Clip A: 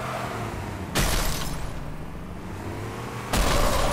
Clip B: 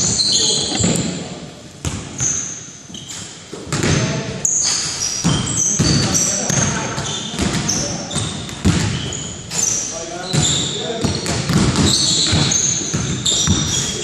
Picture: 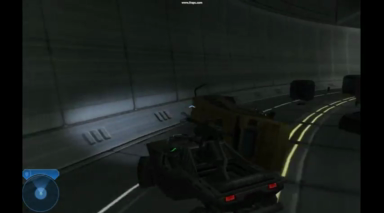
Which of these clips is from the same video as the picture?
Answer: A